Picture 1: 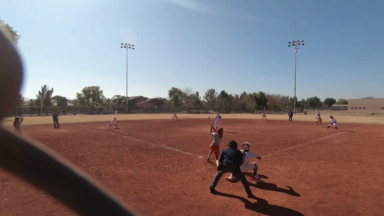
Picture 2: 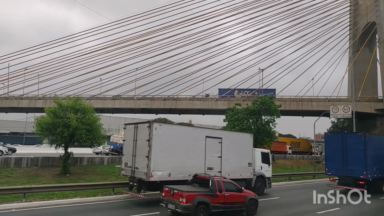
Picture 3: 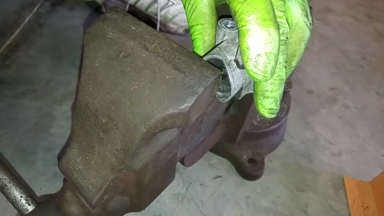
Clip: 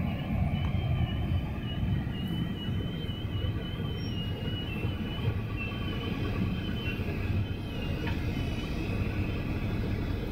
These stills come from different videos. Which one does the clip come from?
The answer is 2